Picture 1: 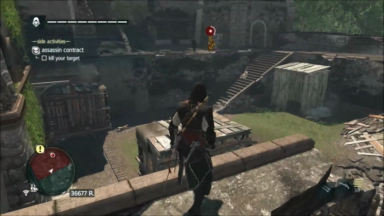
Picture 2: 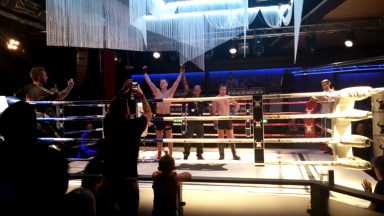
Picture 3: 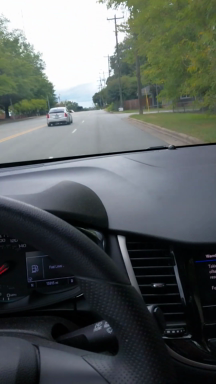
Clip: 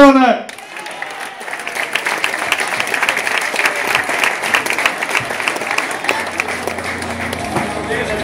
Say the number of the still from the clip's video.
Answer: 2